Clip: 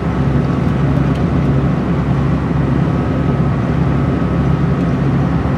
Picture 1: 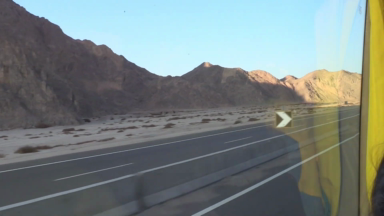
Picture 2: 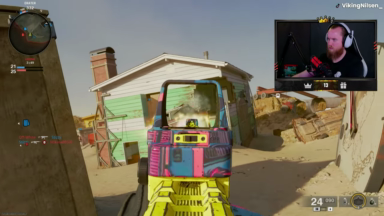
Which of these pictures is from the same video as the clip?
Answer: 1